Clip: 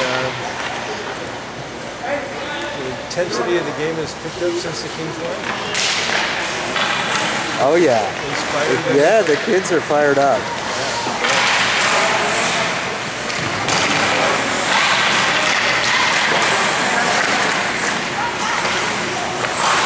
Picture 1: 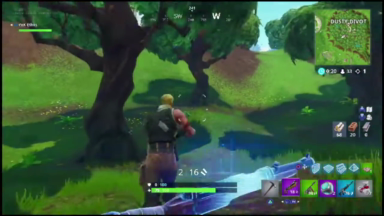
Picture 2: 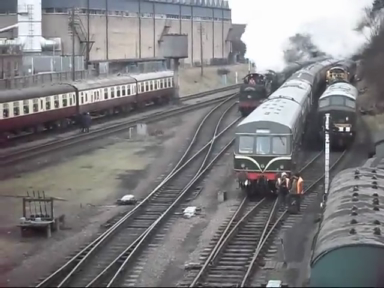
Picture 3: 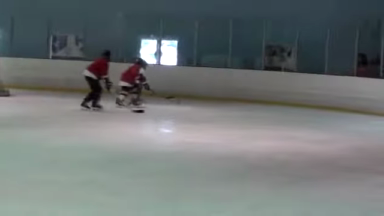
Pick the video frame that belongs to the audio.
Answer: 3